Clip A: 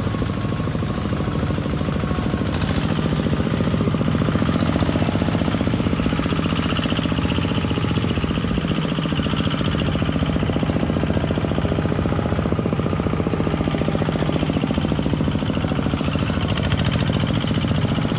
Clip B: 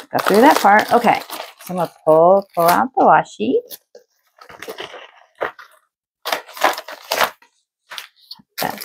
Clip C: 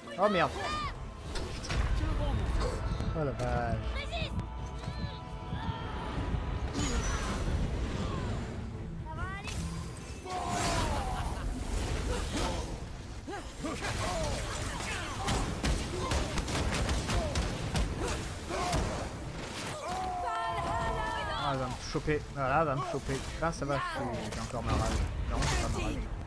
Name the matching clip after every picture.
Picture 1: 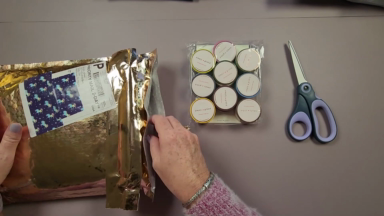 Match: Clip B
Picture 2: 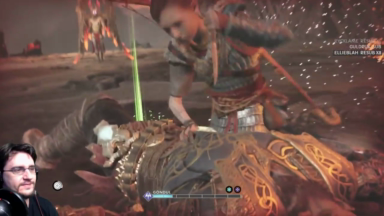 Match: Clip C